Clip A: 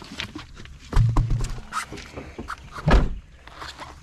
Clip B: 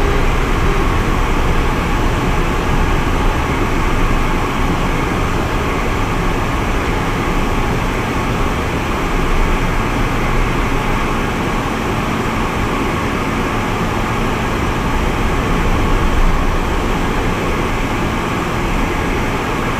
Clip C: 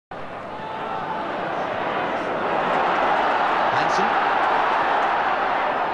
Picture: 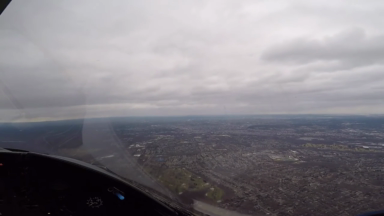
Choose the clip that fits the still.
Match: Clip B